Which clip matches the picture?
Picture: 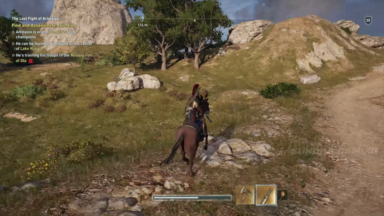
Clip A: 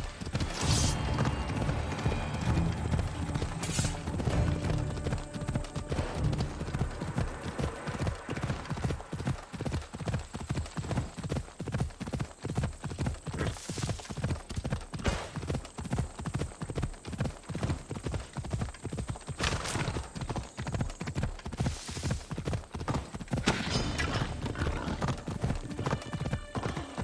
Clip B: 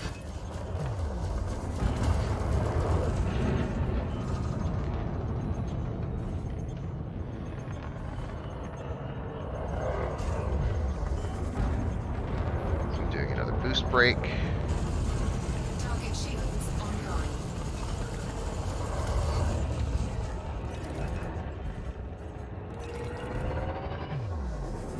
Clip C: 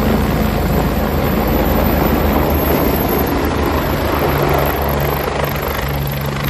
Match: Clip A